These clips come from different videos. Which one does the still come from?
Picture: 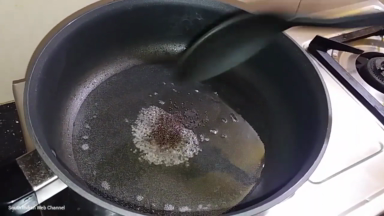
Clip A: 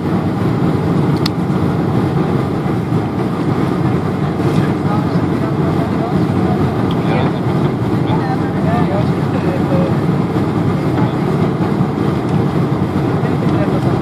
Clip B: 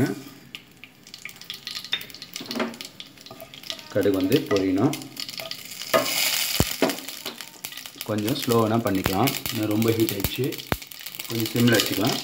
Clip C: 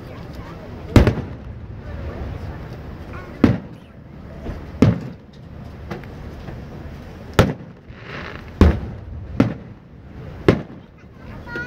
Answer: B